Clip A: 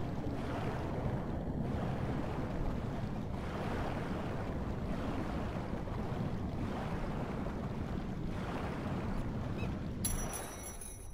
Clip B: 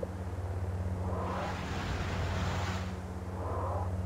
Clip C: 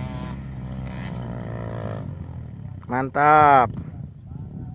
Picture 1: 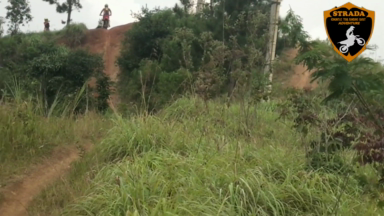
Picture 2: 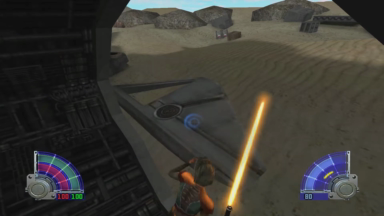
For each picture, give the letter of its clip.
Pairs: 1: C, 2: B